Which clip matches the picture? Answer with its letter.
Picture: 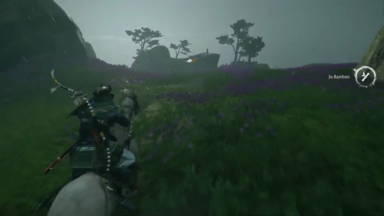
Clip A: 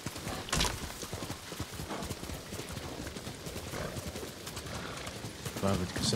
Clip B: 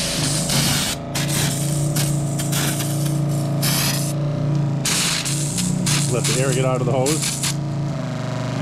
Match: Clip A